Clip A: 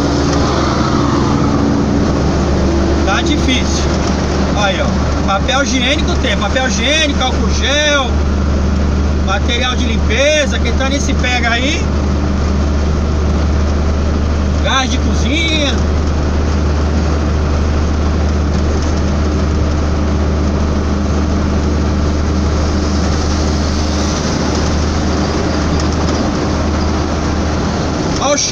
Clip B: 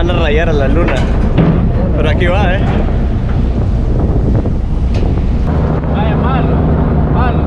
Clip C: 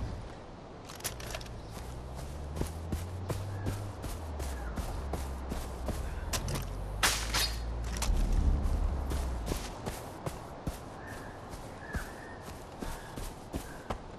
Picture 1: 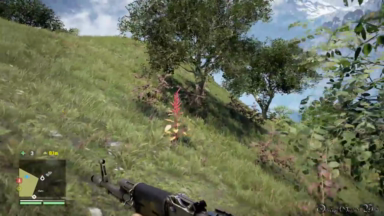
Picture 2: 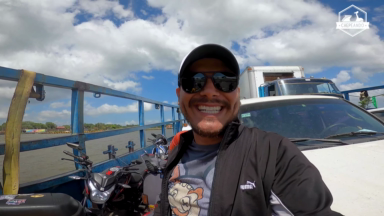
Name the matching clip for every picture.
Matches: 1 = C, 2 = B